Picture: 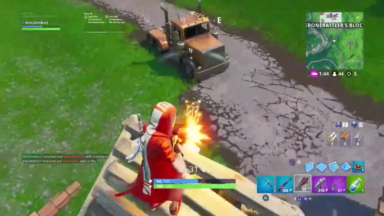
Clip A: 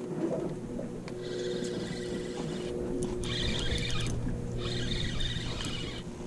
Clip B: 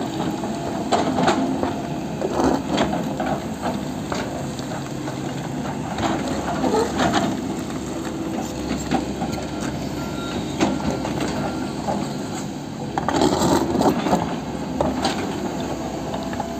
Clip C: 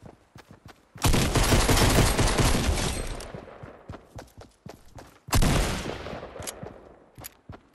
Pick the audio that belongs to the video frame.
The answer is C